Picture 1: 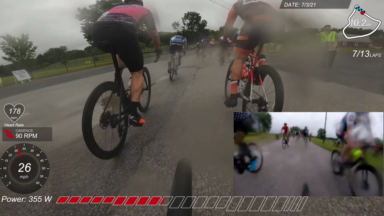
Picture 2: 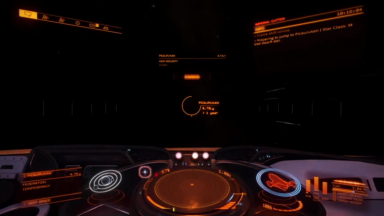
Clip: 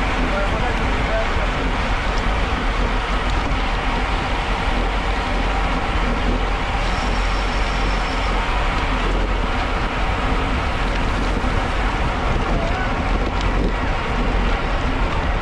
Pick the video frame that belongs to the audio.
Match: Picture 1